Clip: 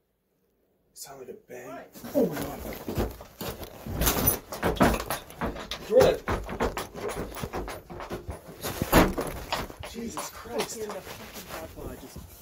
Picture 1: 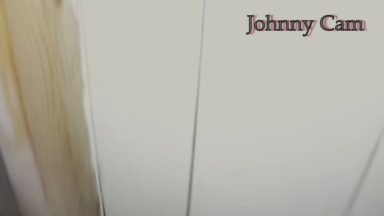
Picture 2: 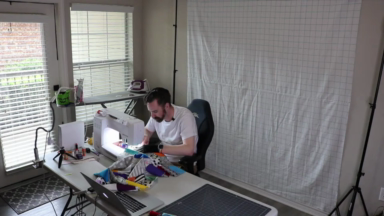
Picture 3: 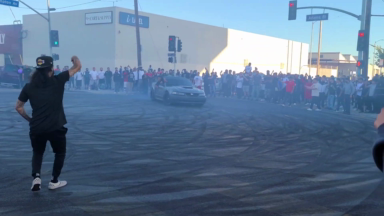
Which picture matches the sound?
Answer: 1